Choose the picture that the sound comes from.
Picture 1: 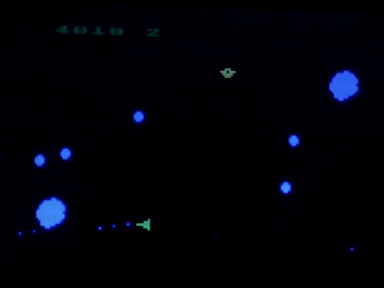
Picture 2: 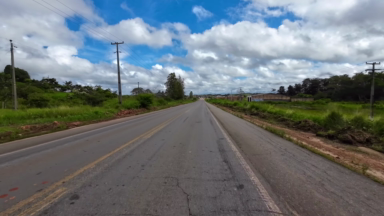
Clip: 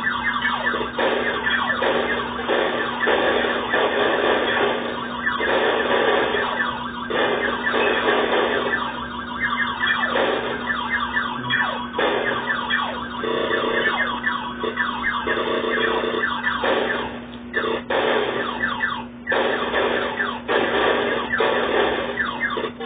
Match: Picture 1